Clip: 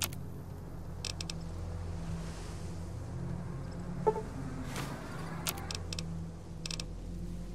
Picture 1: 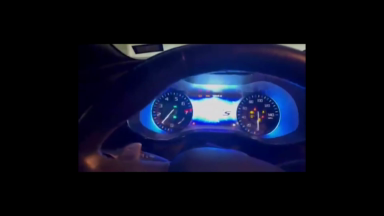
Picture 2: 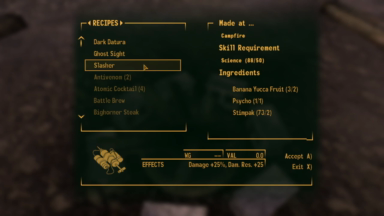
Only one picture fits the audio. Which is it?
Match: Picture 2